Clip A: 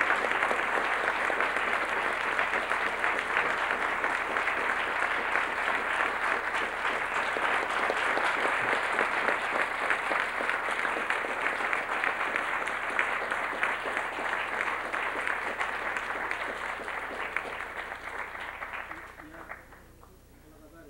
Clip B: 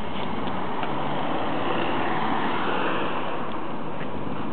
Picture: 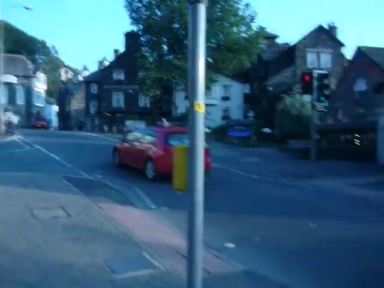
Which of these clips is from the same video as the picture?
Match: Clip B